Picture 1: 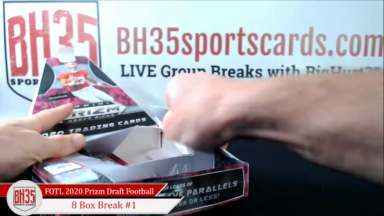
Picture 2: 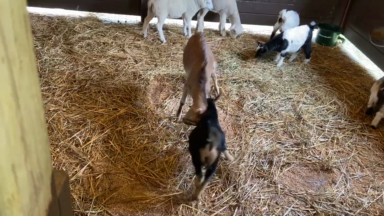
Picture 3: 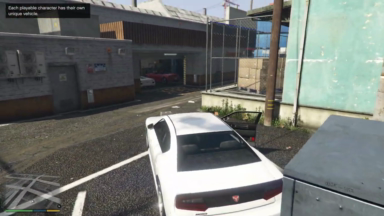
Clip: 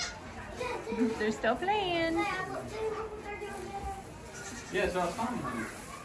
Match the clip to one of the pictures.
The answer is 2